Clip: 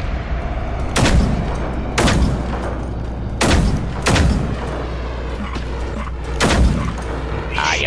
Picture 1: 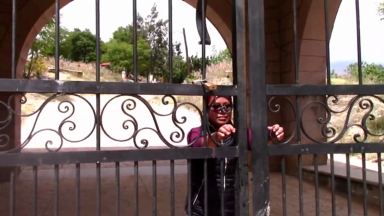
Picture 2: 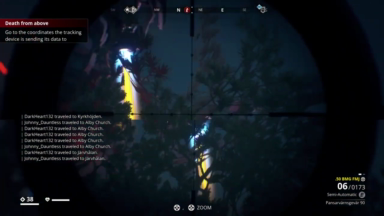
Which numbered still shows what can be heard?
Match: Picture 2